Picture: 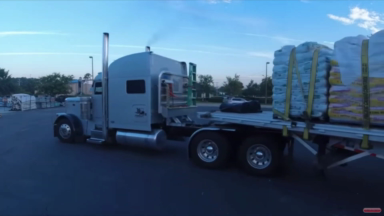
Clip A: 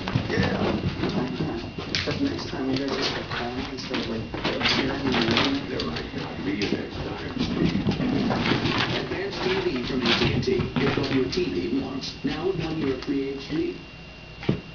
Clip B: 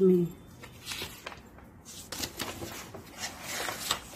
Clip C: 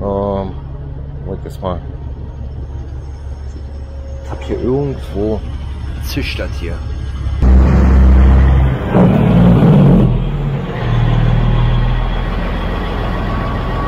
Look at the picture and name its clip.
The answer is C